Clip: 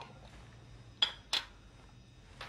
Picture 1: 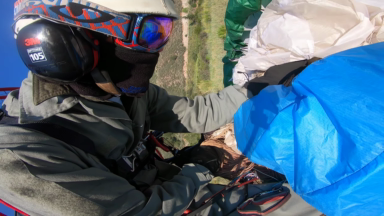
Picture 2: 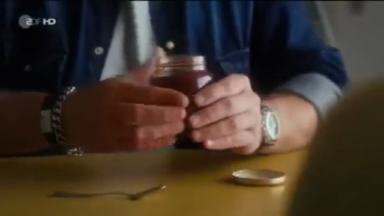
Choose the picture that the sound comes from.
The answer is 2